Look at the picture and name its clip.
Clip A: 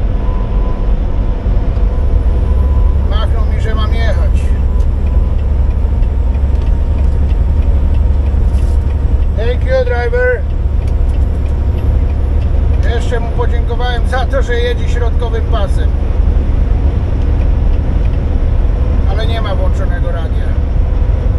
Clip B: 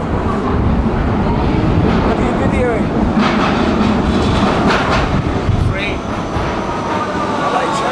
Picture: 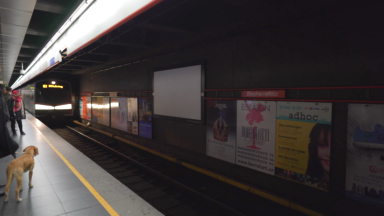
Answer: B